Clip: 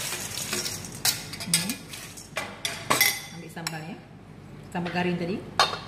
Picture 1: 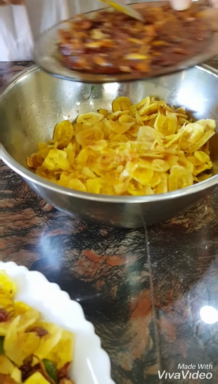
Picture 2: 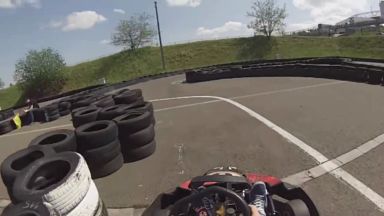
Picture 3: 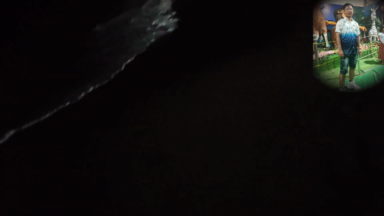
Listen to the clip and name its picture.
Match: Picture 1